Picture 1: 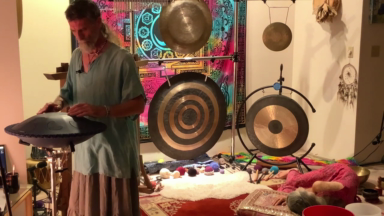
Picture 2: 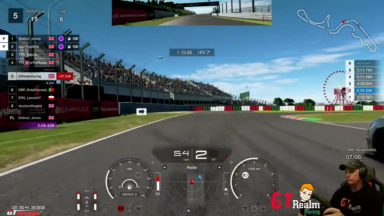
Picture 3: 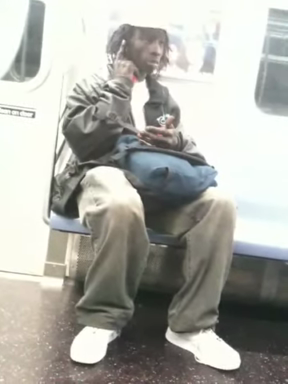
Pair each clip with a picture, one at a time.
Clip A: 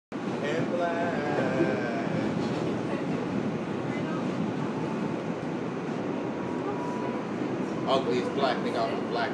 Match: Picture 3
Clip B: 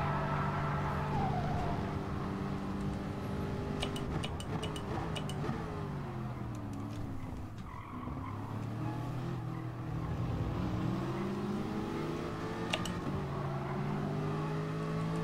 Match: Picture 2